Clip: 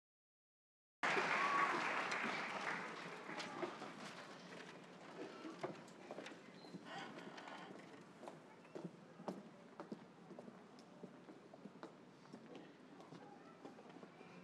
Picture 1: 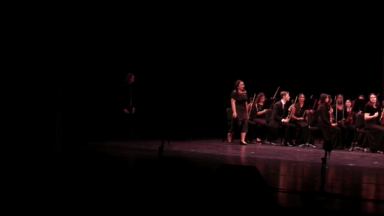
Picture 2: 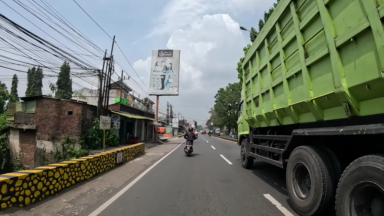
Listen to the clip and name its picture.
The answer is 1